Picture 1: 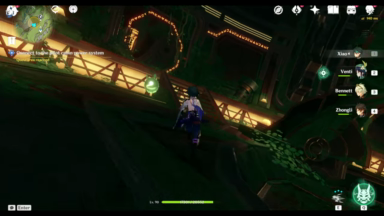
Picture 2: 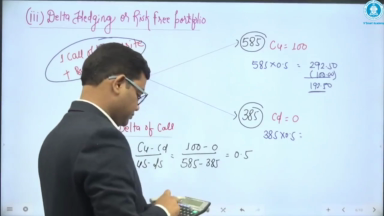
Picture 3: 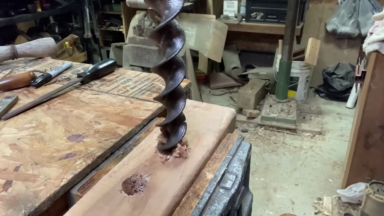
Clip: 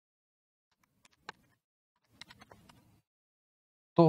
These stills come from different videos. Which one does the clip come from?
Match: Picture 2